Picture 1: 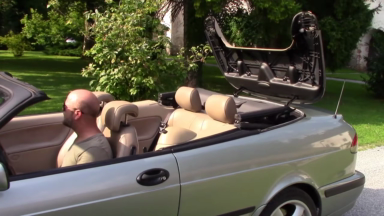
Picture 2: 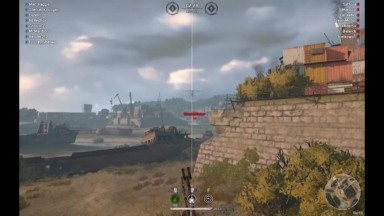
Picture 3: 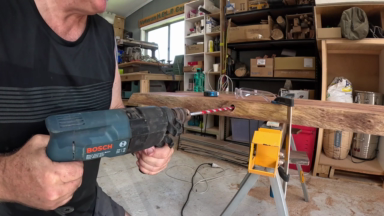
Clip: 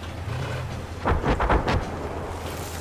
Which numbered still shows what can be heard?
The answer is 2